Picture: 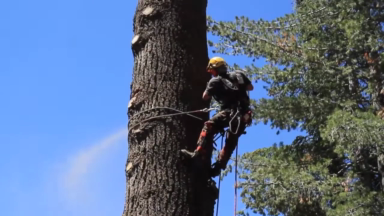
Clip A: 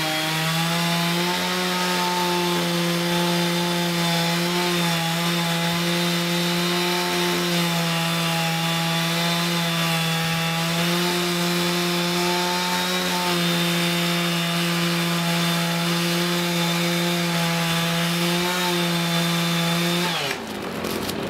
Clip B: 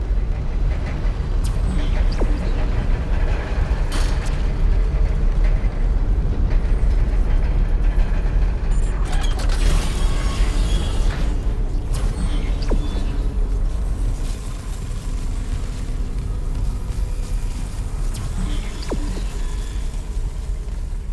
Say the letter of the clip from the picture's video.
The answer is A